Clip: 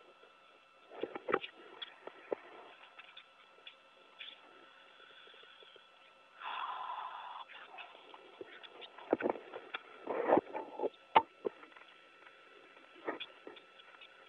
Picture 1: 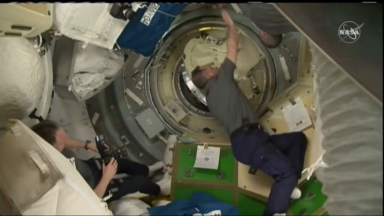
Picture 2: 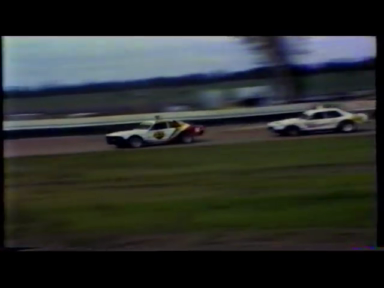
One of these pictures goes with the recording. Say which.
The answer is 1